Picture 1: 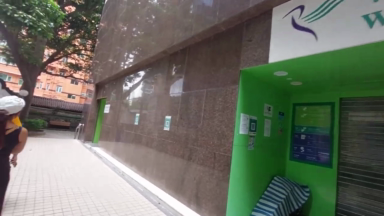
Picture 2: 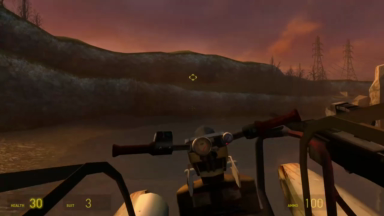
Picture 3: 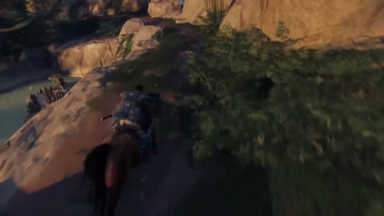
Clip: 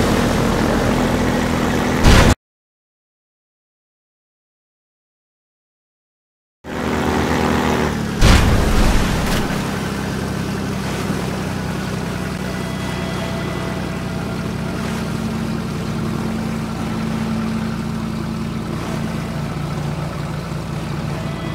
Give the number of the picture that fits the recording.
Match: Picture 2